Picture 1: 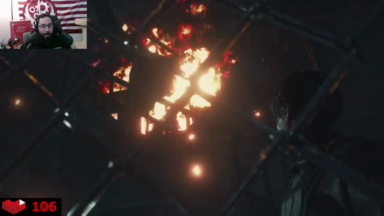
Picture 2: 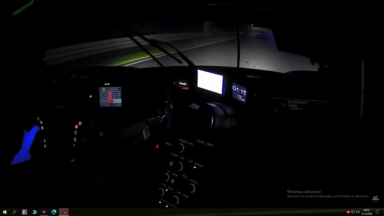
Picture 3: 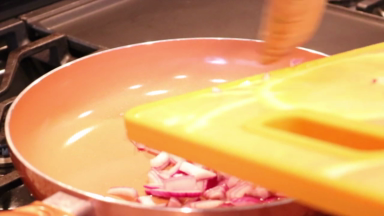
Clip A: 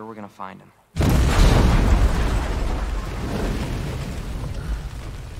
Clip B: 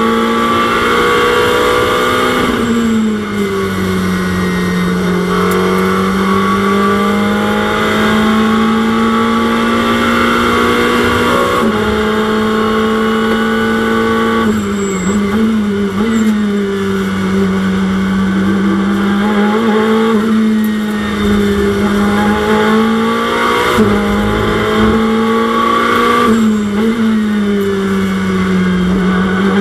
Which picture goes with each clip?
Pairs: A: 1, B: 2